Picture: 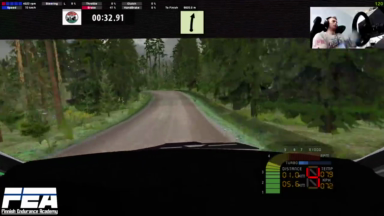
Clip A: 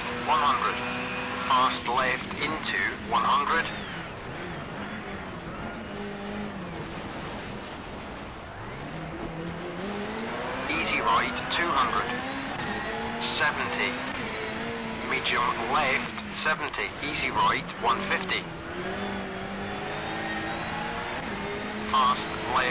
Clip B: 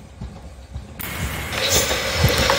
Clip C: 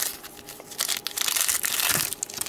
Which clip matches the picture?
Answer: A